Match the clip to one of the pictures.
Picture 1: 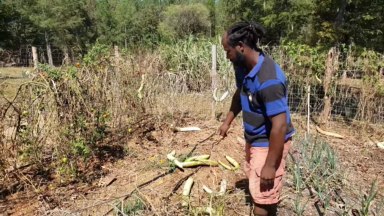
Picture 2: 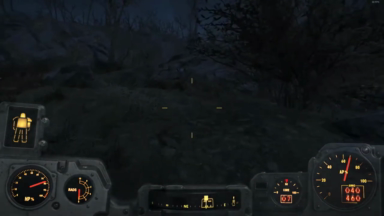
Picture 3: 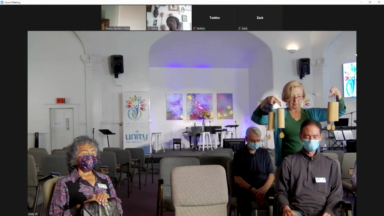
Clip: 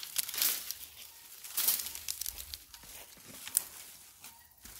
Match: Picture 1